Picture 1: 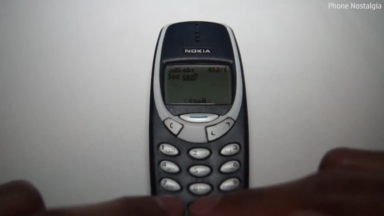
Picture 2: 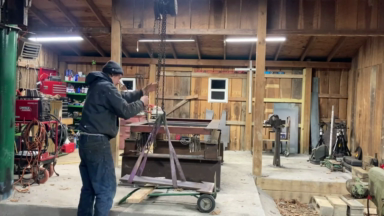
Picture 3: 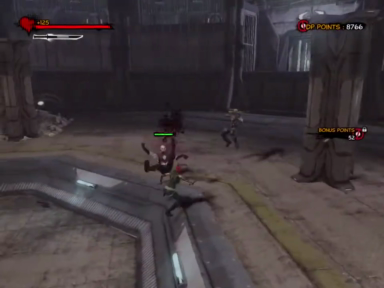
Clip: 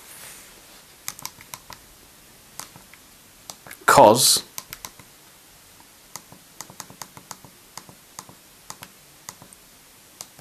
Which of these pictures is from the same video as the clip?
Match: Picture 1